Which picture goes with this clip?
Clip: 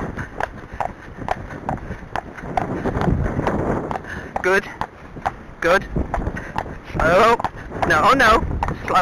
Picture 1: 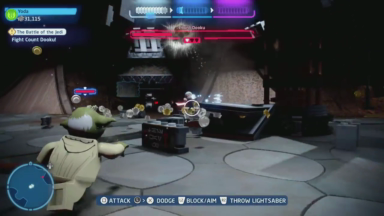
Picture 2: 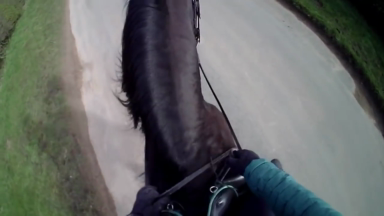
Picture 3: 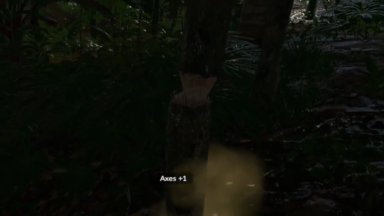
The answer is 2